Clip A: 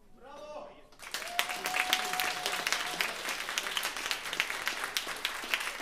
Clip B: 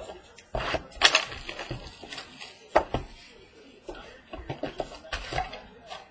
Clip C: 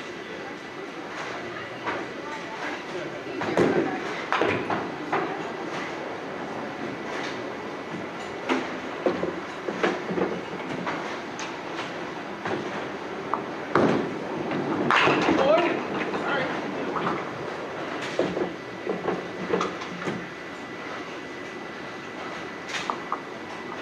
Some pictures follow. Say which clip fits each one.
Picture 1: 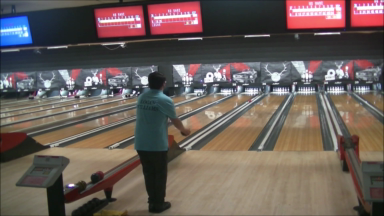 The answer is C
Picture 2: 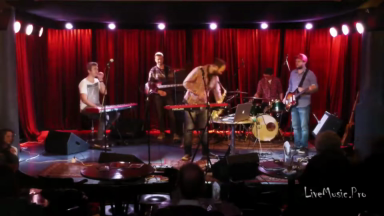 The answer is A